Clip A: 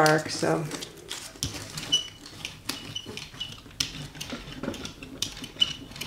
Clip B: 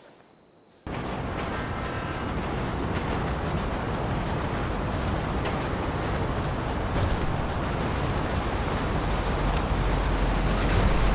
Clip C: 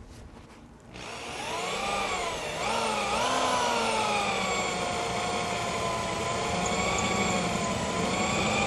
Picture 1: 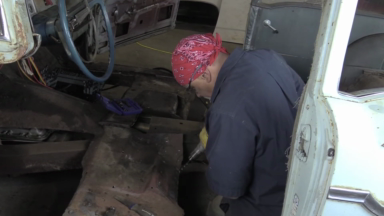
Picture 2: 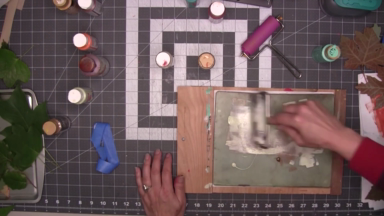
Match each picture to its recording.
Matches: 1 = C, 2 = A